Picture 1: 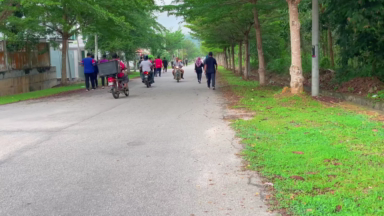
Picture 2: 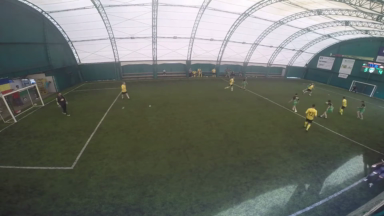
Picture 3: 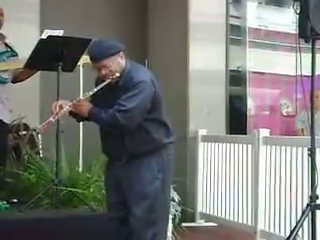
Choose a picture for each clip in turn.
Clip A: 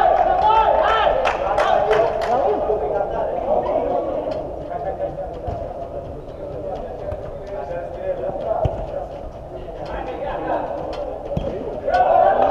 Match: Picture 2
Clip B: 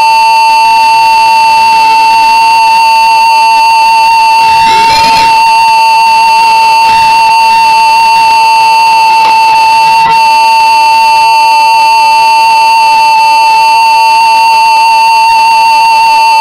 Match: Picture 3